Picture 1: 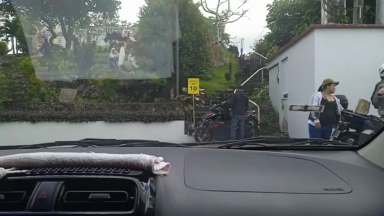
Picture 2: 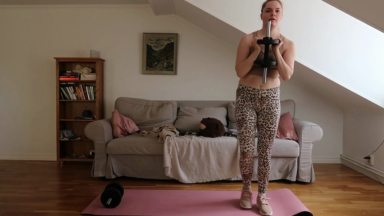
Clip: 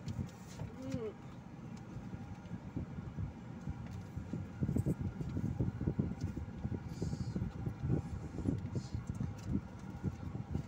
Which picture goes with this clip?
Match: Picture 1